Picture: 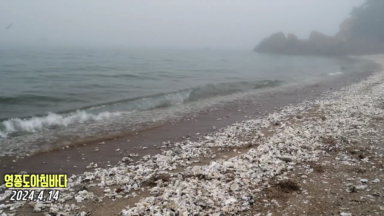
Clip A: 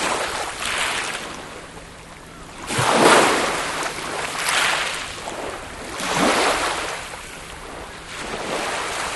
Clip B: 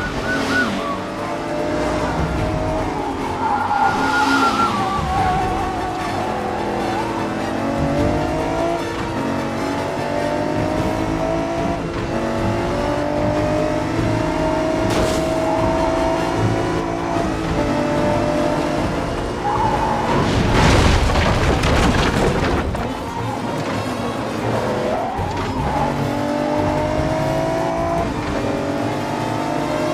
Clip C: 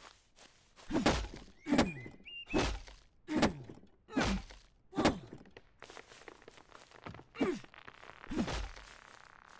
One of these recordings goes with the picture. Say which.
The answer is A